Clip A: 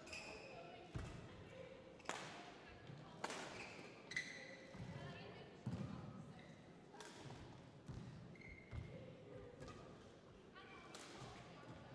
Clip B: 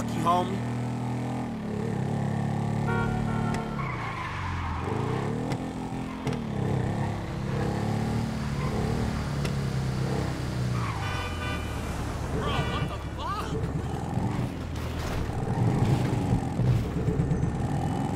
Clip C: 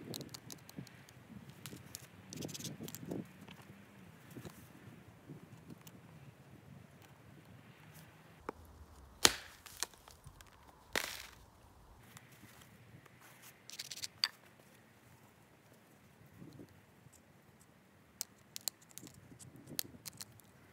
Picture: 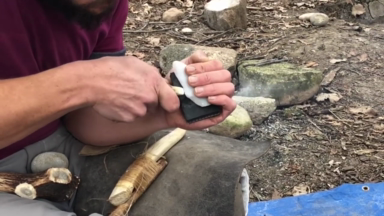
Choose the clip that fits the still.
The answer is C